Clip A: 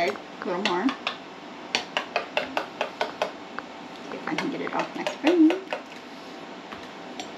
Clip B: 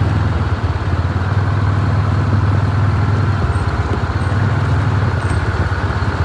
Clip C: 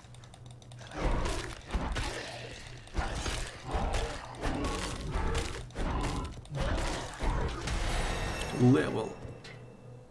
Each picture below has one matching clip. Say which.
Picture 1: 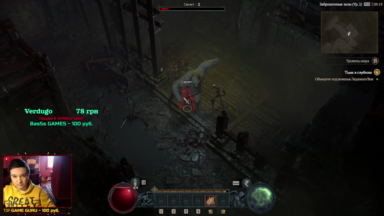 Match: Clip C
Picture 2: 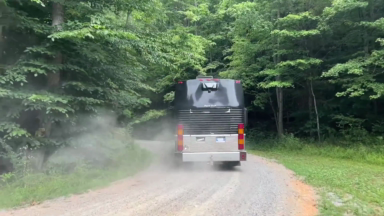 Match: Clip B